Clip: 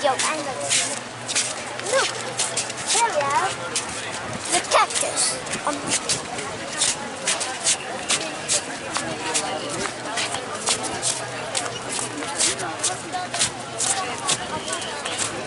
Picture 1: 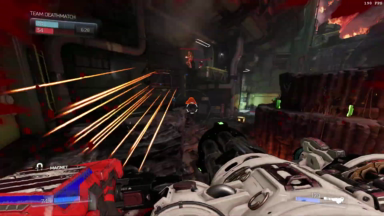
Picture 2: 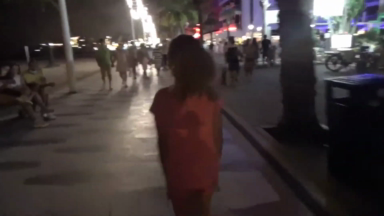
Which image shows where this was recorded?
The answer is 2